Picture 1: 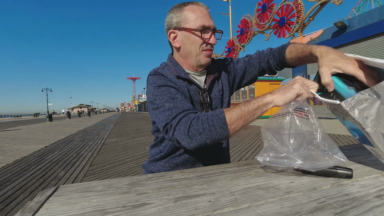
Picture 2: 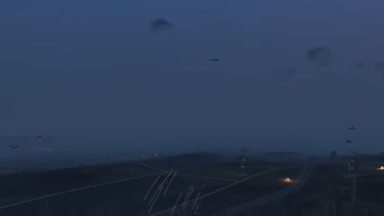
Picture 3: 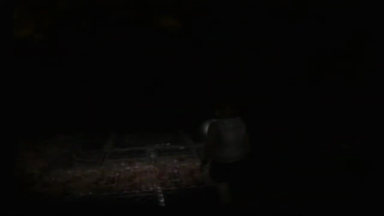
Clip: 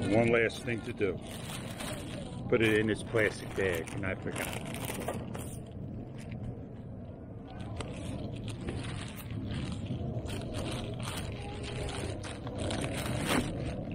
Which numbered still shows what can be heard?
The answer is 1